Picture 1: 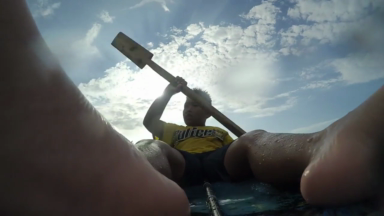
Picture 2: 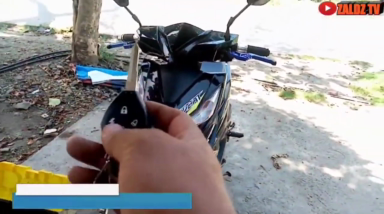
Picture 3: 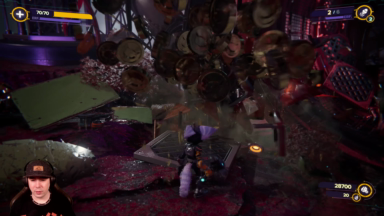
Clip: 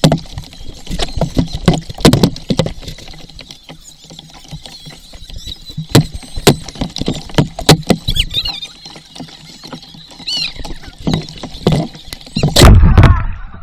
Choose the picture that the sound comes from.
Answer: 1